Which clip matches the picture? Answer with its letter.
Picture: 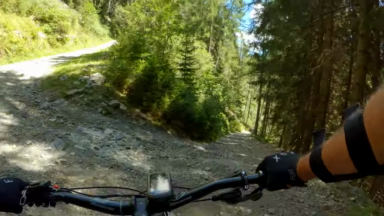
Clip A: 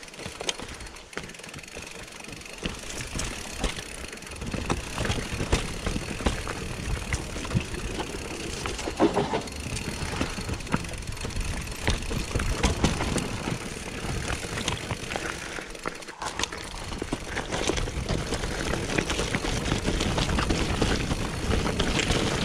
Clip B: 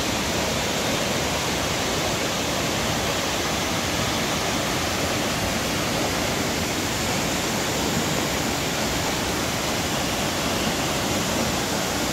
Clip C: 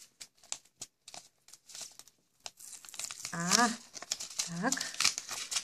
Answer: A